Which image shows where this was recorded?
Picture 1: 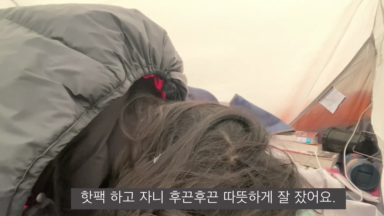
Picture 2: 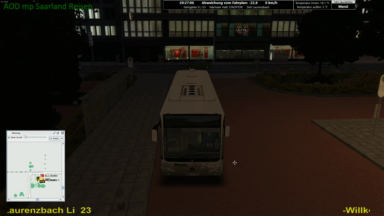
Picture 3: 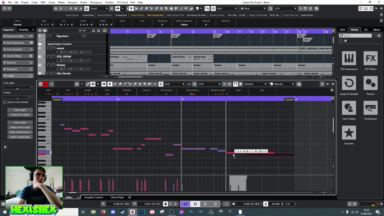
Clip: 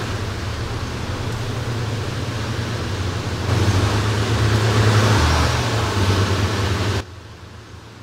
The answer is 2